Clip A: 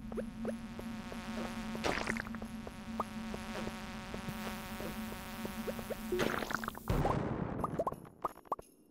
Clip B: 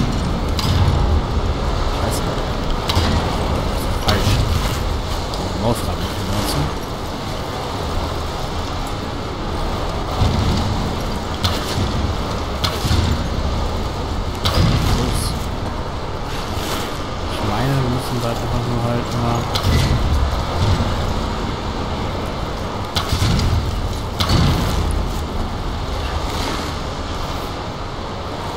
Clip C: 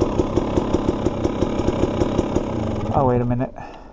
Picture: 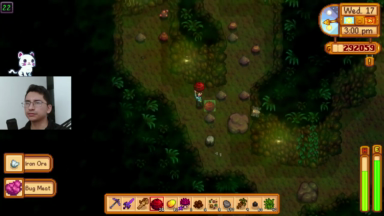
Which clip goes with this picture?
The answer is A